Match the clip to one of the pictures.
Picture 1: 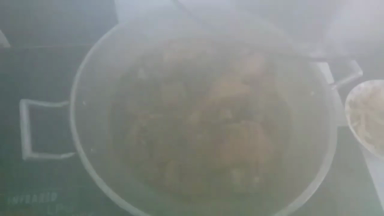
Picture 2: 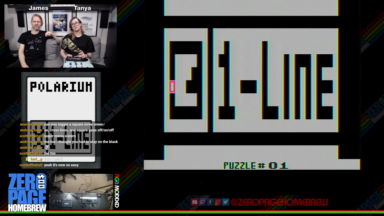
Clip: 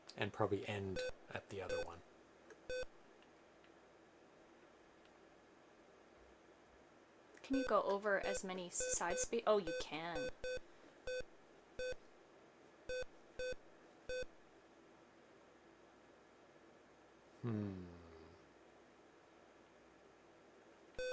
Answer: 2